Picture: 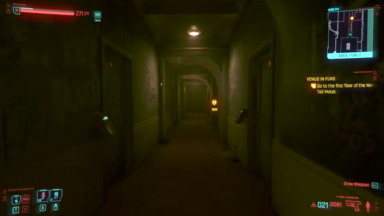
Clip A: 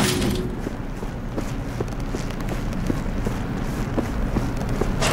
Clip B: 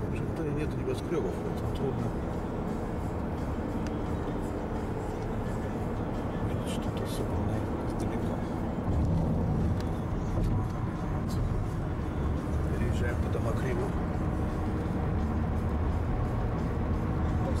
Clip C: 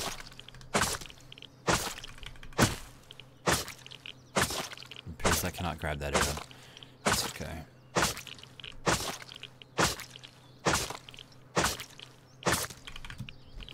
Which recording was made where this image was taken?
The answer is A